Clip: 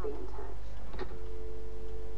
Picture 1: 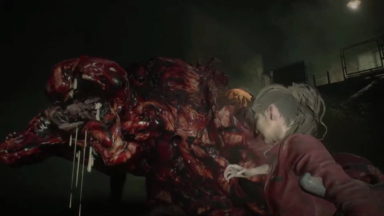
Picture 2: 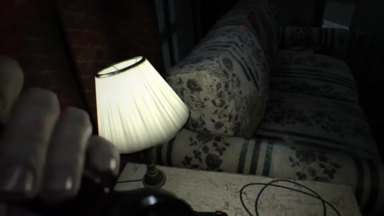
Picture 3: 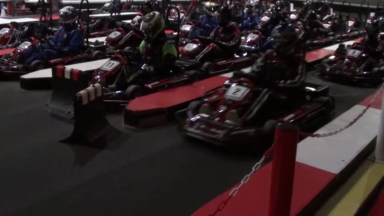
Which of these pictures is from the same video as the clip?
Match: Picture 2